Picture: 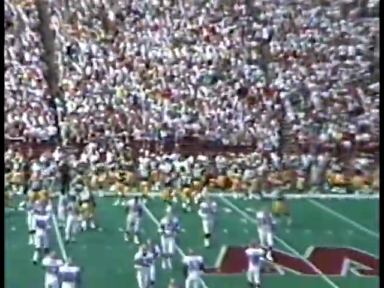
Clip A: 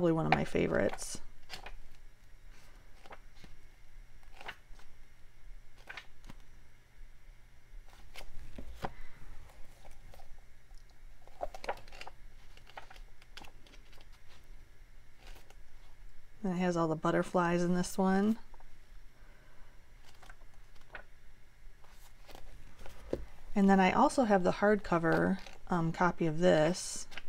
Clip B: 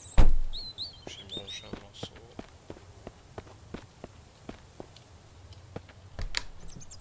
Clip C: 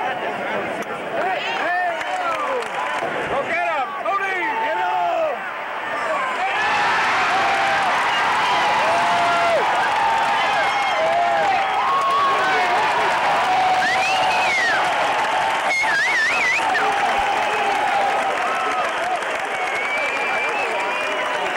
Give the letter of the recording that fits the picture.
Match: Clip C